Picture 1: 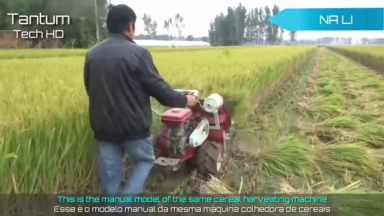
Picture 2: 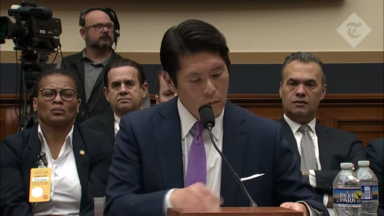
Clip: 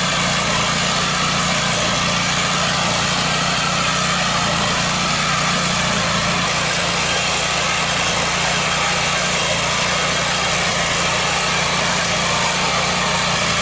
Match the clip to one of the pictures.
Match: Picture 1